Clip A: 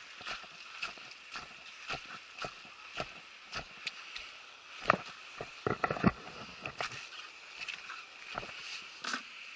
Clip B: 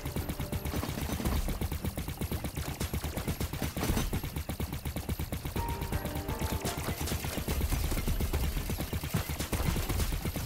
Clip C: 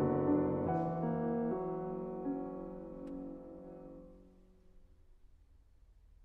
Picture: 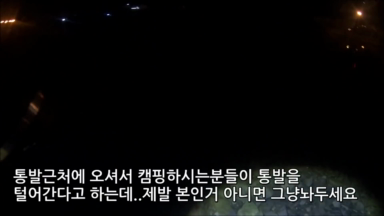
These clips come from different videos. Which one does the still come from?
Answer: A